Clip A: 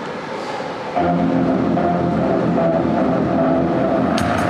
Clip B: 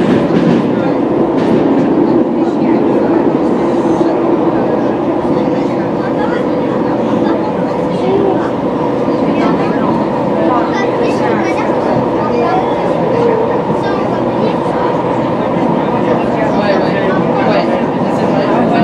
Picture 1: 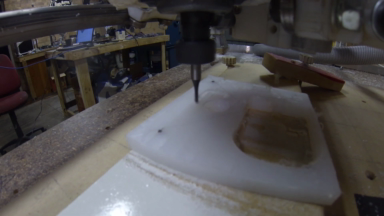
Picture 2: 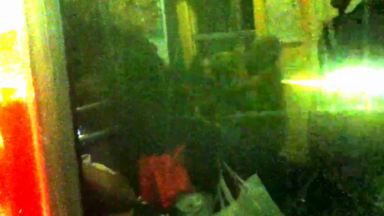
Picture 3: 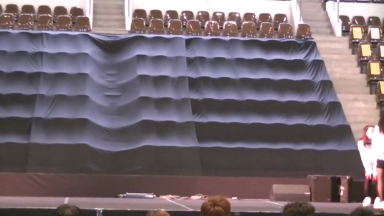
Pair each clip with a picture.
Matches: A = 3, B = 2